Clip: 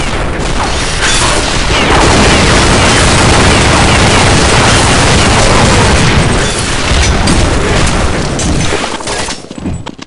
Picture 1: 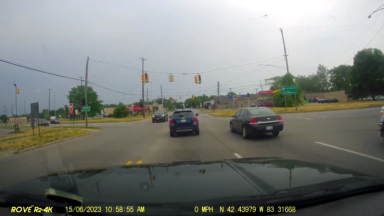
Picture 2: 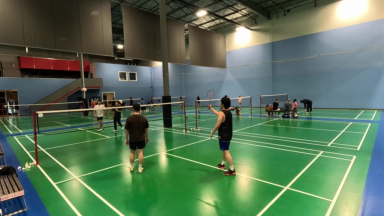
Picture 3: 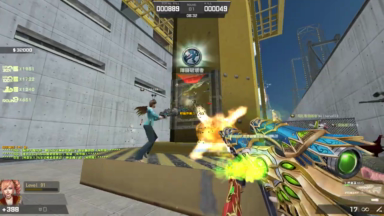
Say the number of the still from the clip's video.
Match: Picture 3